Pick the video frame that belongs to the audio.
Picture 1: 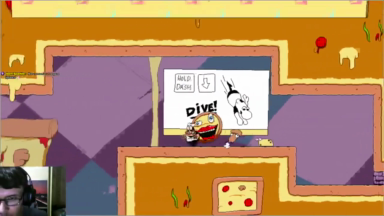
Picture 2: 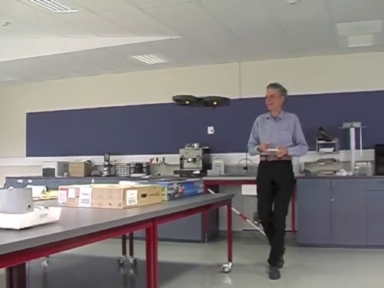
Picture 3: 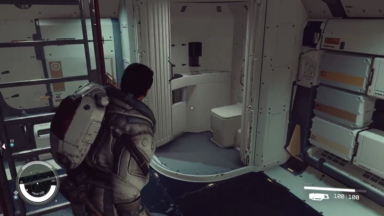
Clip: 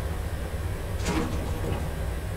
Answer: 3